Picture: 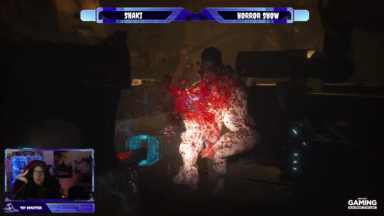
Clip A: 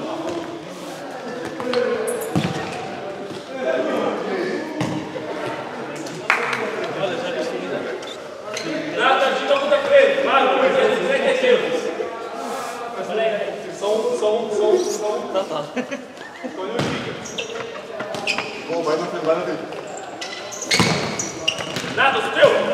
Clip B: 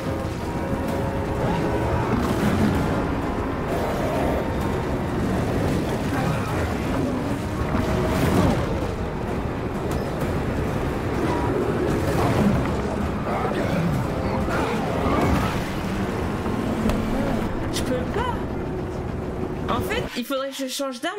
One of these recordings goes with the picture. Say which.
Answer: B